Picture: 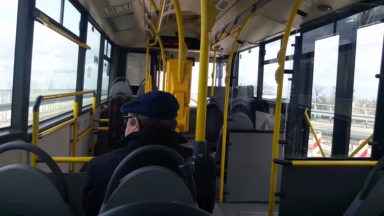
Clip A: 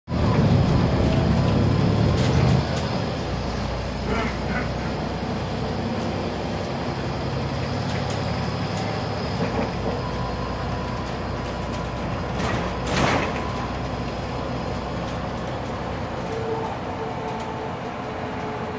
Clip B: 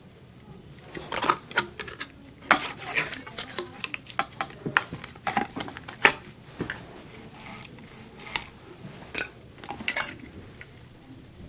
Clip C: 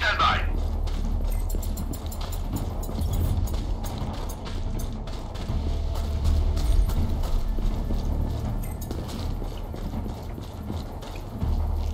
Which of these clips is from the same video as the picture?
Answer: A